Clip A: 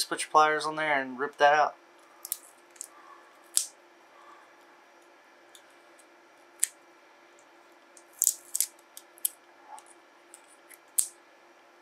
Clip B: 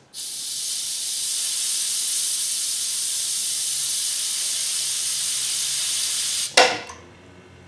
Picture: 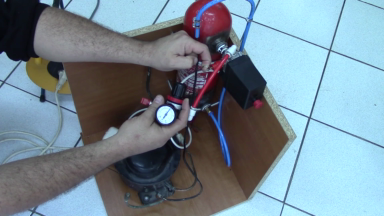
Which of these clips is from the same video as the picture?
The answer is B